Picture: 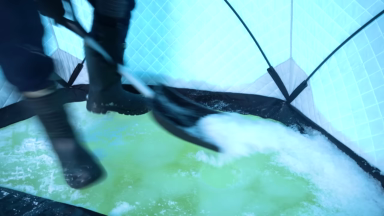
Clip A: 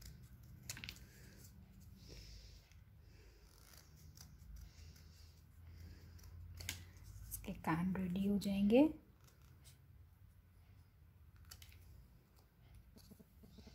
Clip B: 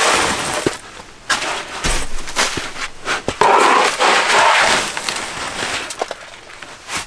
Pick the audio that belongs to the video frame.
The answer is B